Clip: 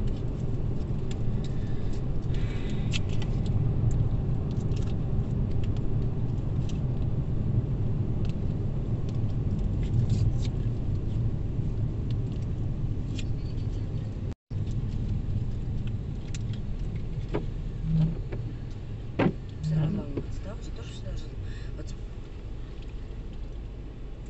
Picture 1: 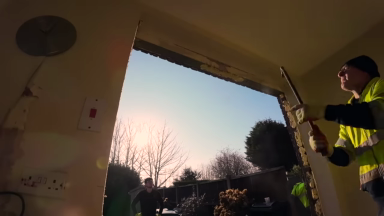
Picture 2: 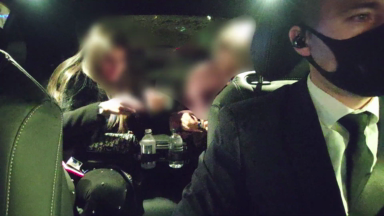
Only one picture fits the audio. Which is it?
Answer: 2